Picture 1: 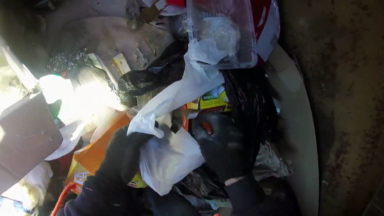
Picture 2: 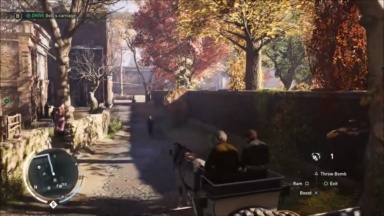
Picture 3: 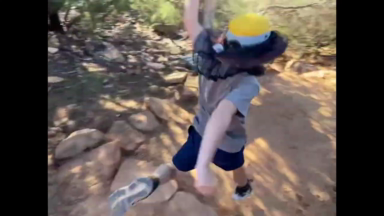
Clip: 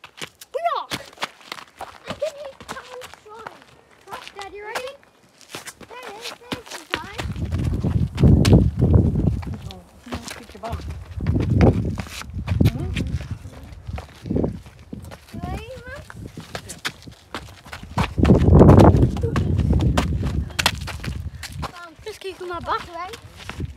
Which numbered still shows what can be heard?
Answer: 3